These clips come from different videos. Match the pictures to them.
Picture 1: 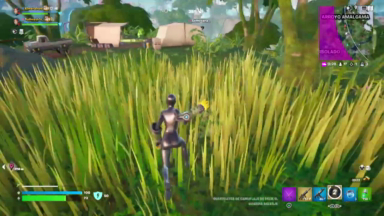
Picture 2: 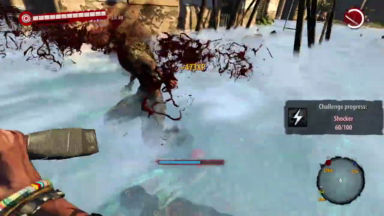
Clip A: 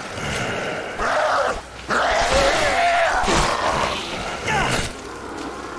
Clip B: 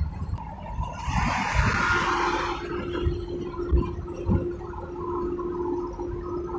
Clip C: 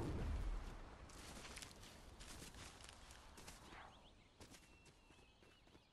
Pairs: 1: C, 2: A